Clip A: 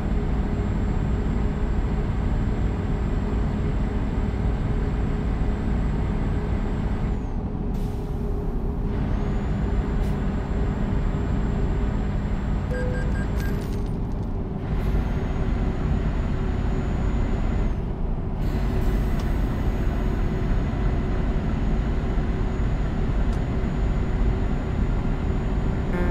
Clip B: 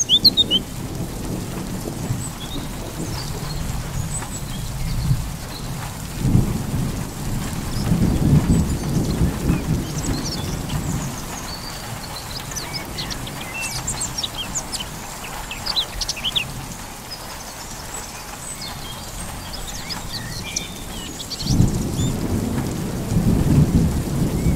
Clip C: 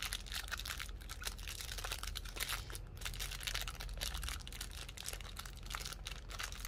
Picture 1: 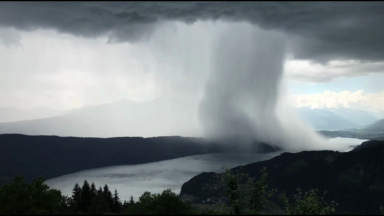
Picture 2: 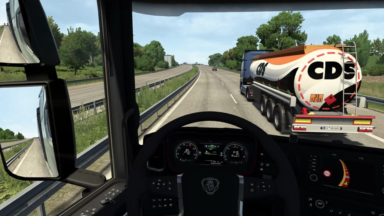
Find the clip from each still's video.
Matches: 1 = B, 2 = A